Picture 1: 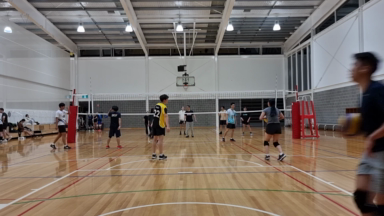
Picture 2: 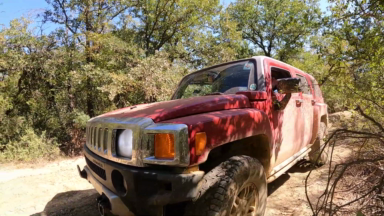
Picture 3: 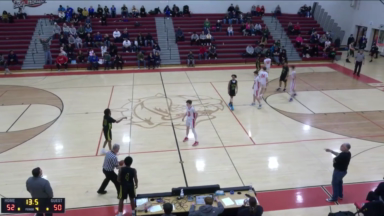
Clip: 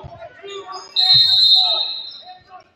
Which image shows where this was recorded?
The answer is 3